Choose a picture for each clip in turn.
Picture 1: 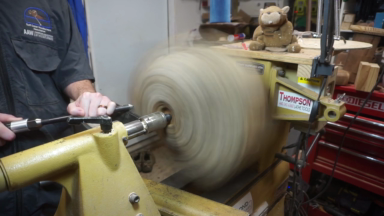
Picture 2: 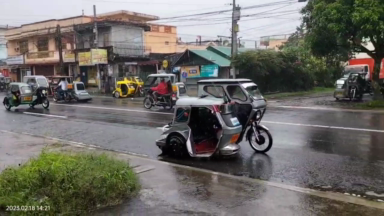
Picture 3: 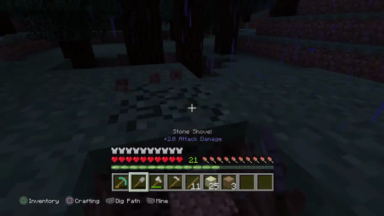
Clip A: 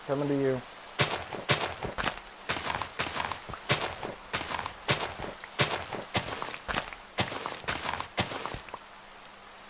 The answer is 3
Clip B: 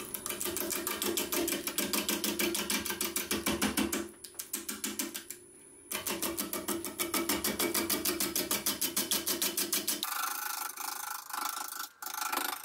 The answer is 1